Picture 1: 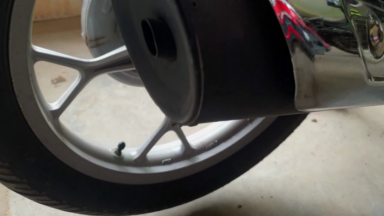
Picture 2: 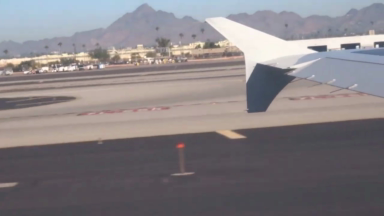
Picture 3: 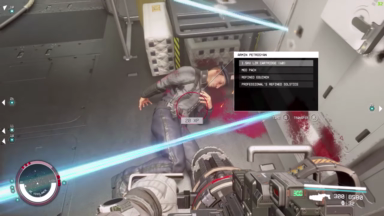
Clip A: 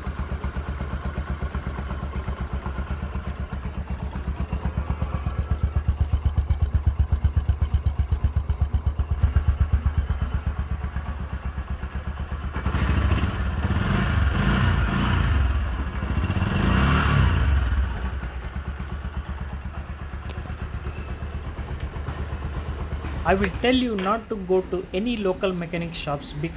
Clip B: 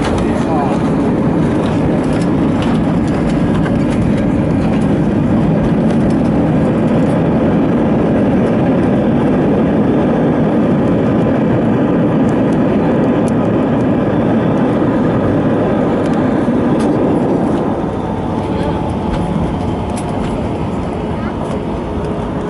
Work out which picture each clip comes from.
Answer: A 1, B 2